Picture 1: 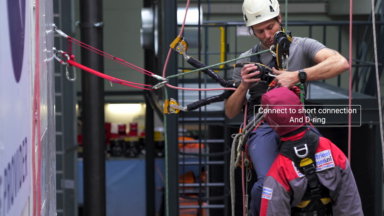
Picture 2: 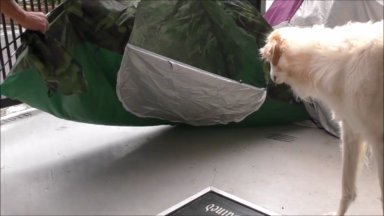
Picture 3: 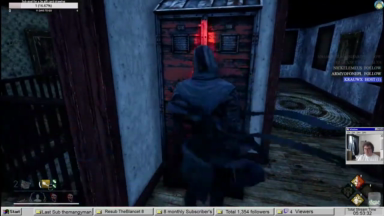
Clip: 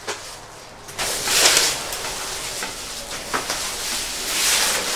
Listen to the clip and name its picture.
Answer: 2